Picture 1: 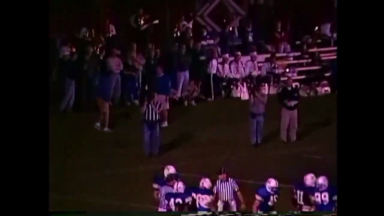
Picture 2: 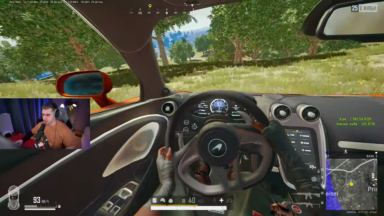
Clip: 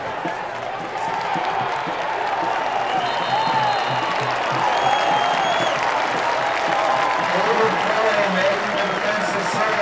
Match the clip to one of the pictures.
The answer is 1